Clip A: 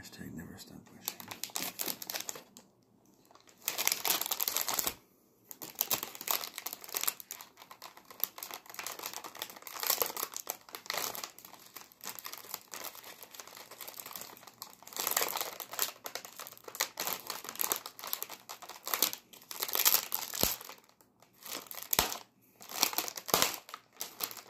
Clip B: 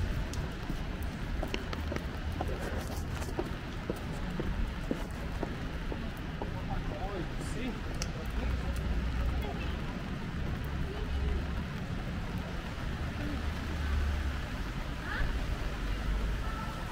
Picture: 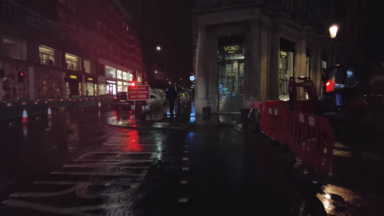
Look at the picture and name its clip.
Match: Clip B